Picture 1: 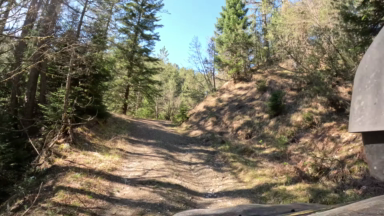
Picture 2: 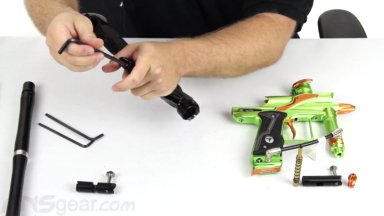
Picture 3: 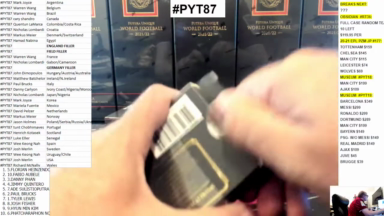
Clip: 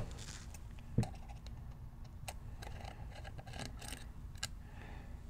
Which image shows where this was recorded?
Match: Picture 2